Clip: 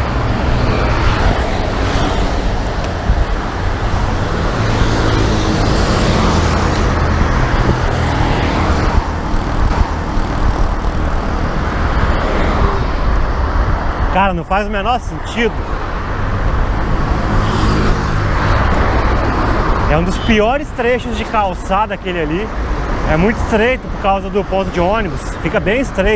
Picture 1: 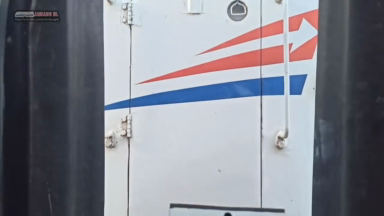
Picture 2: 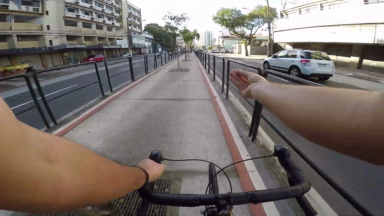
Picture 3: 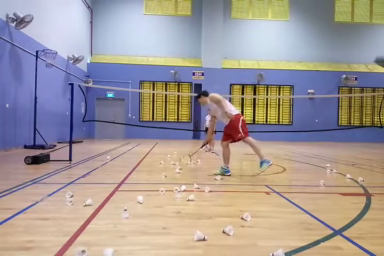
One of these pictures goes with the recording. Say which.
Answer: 2